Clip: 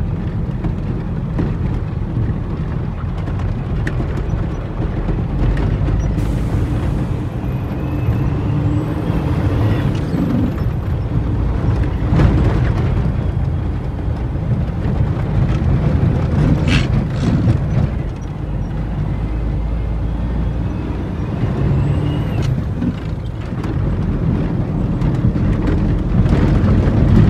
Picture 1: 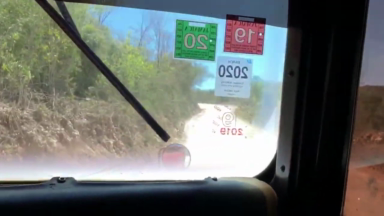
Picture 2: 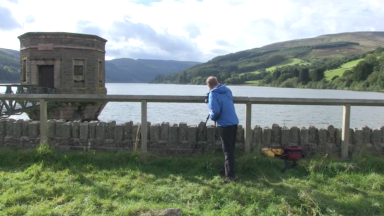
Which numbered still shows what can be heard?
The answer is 1